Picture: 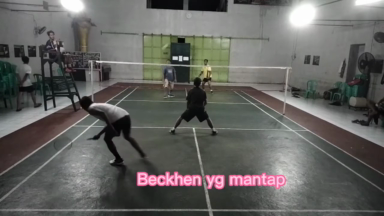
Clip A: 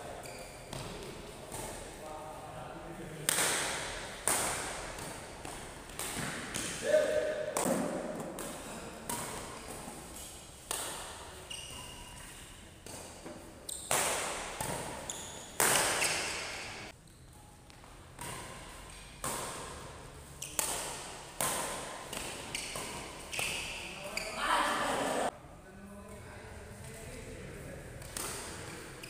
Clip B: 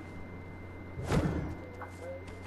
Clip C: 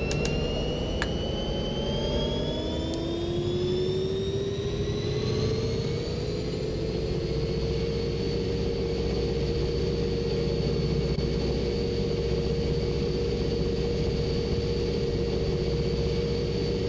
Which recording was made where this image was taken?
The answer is A